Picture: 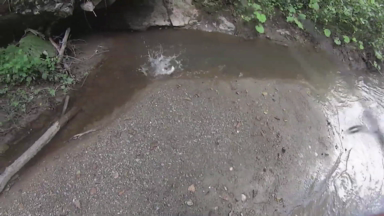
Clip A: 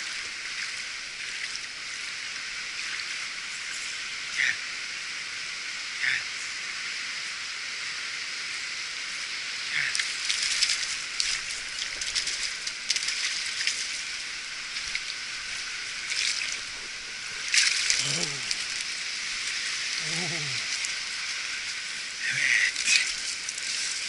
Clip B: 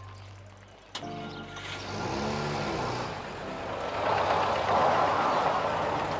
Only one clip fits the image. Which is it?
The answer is A